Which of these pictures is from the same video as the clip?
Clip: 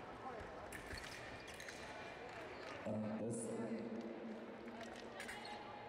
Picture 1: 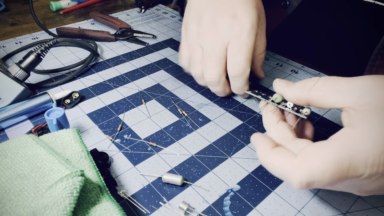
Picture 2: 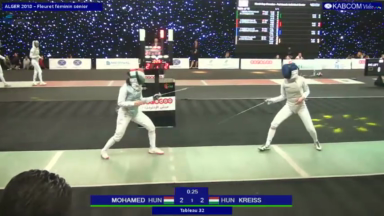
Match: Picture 2